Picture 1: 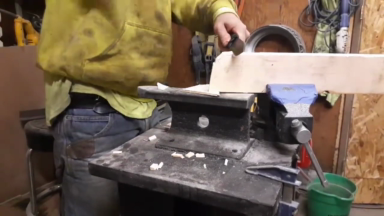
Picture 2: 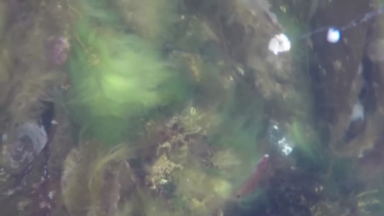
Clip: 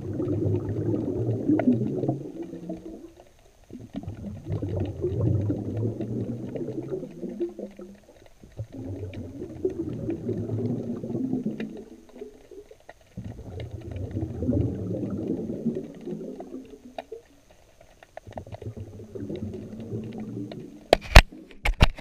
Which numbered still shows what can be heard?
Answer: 2